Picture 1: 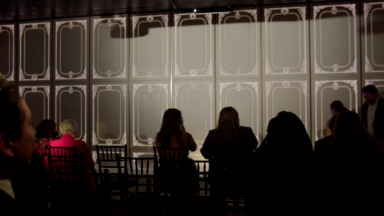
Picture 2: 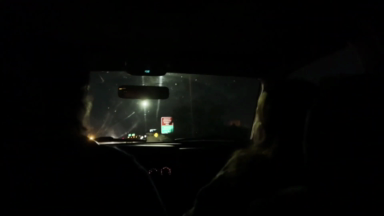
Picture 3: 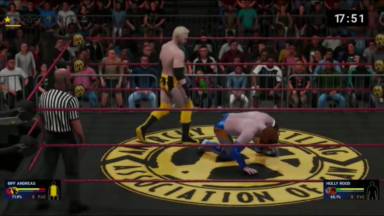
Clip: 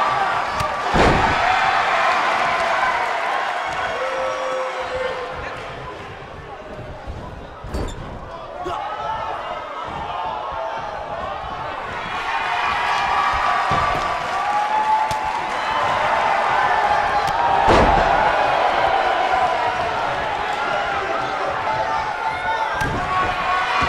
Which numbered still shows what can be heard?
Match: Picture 3